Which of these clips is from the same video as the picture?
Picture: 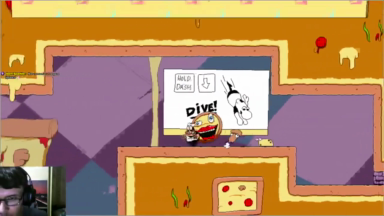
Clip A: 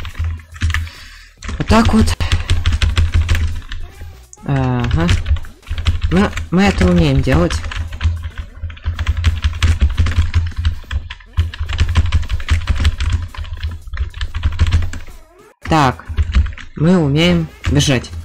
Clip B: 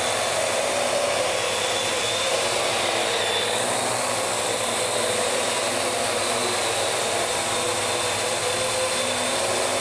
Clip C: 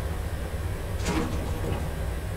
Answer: A